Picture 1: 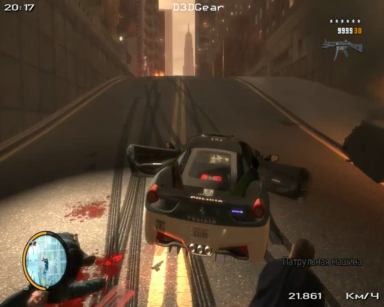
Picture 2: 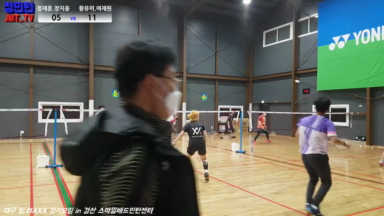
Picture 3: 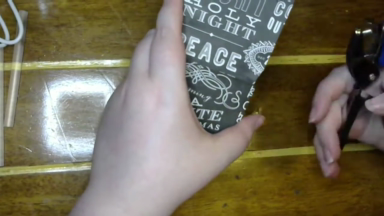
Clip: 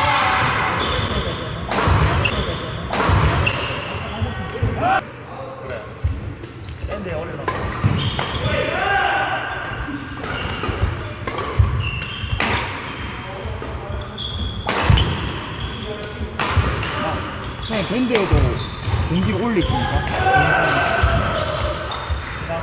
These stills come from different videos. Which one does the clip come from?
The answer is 2